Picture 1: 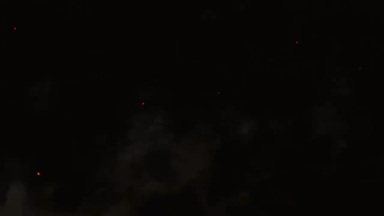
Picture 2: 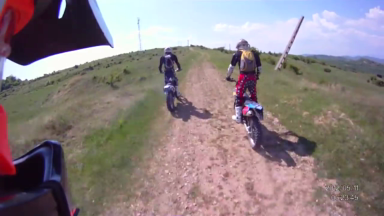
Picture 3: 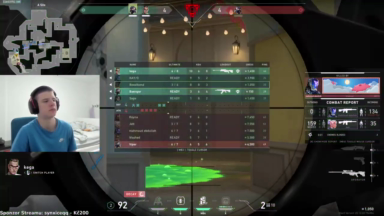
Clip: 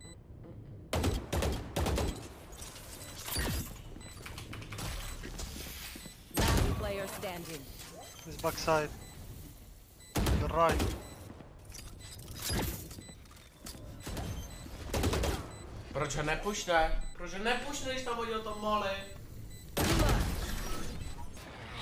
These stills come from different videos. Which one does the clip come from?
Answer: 3